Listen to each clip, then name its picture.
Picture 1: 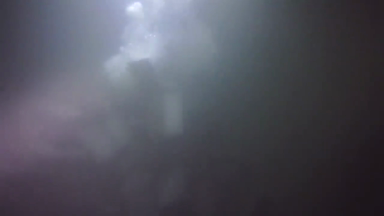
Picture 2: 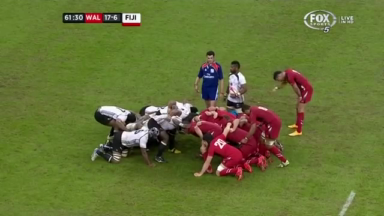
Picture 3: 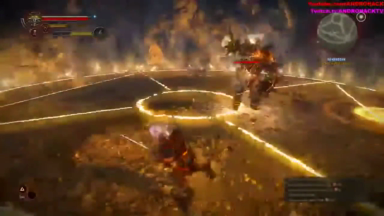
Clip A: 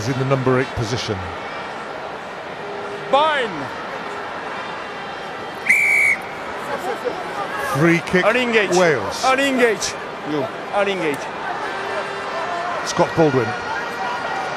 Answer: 2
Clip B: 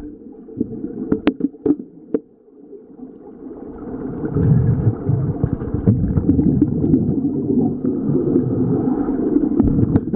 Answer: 1